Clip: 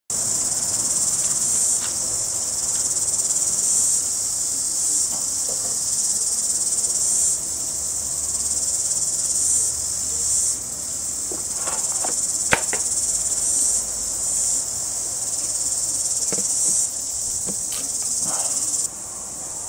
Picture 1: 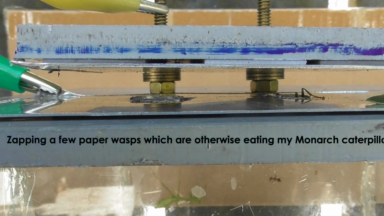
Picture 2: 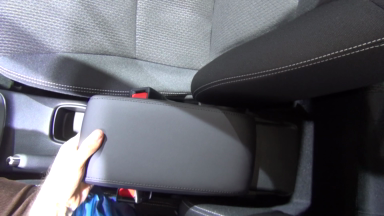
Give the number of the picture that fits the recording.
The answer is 1